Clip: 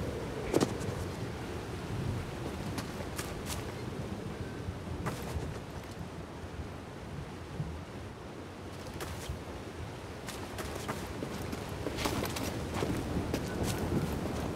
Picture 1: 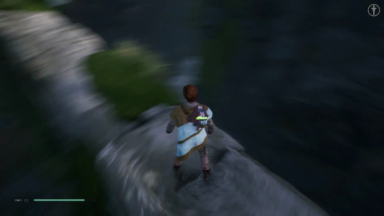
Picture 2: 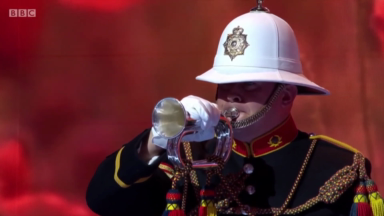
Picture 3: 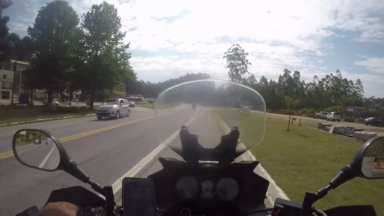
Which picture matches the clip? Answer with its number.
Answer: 1